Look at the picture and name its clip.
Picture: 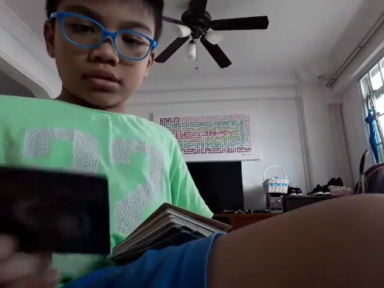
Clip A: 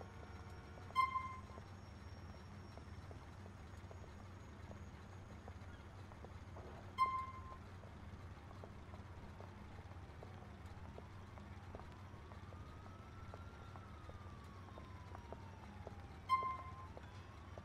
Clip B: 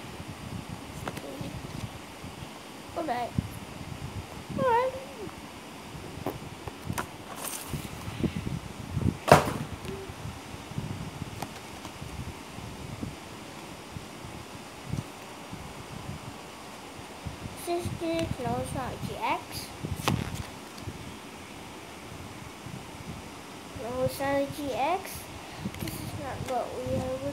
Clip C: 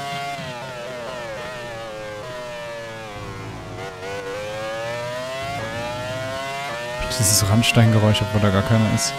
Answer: B